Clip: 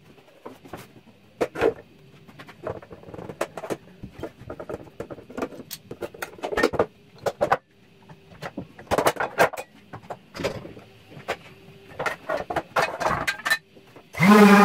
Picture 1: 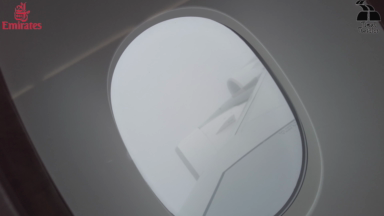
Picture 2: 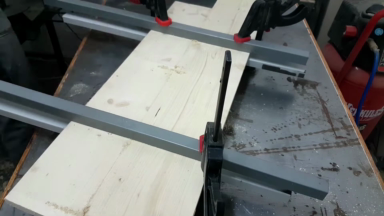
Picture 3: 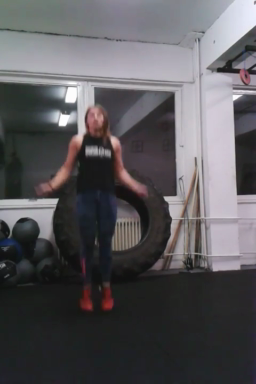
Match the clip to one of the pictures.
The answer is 2